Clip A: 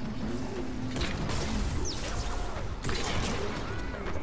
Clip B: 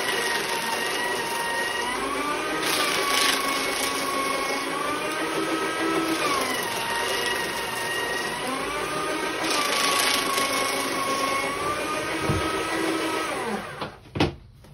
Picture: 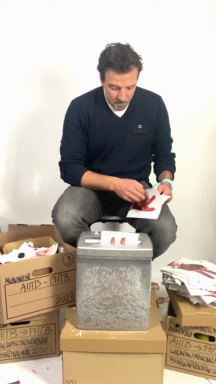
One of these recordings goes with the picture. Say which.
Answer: B